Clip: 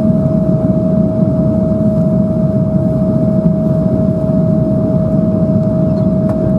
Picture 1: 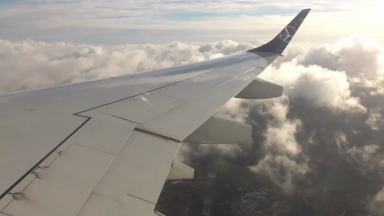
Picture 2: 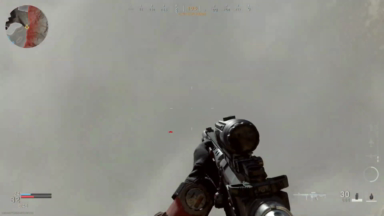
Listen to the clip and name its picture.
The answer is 1